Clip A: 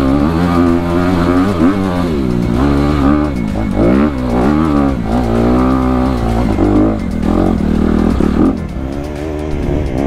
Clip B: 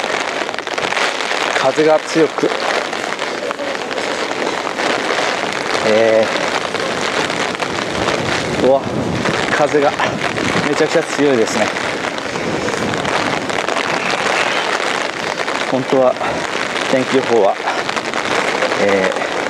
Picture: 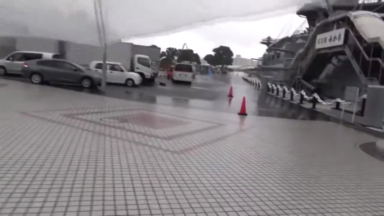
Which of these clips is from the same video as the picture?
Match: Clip B